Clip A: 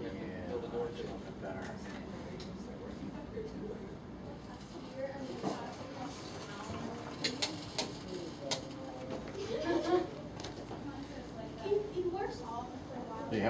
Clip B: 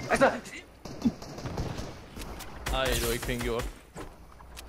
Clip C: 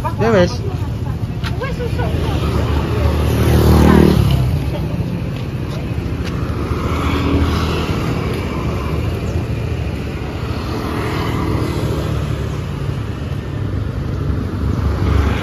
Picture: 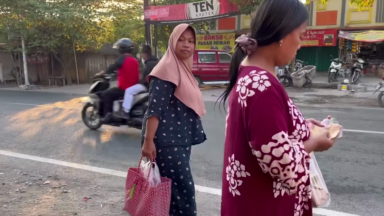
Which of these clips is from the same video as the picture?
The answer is C